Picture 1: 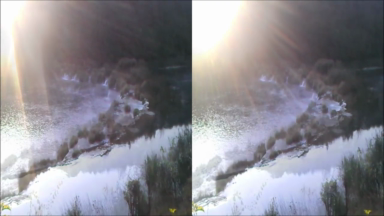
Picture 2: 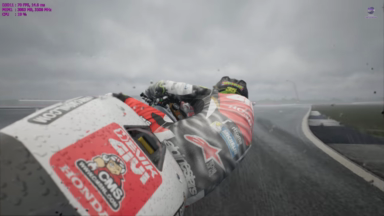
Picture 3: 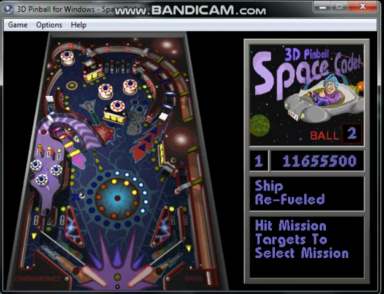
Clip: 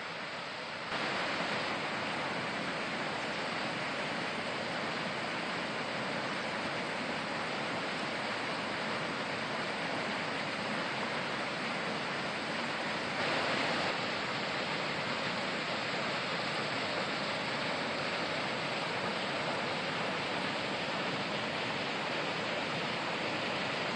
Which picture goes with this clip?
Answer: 1